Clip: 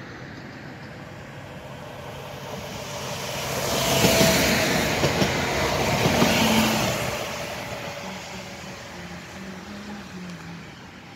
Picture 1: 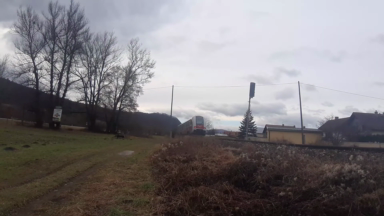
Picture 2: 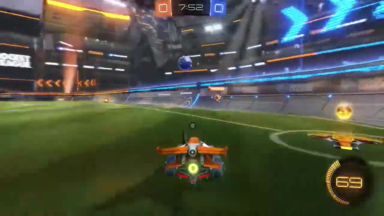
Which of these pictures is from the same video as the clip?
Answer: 1